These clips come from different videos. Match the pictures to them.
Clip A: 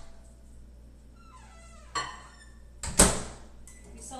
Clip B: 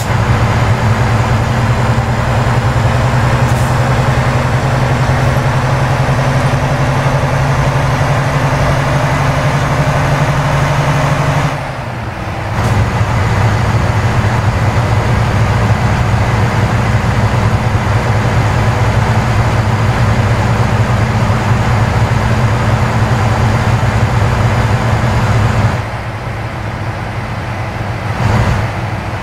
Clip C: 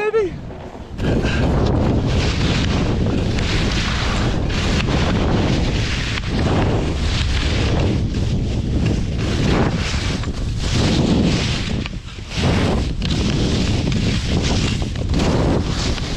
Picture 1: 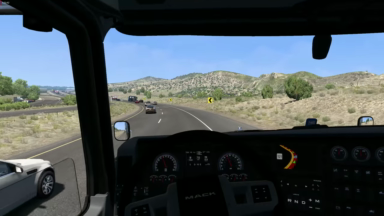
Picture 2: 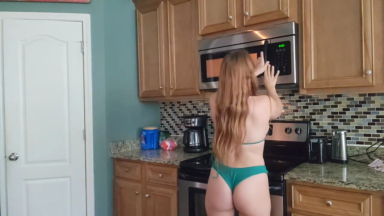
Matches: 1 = B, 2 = A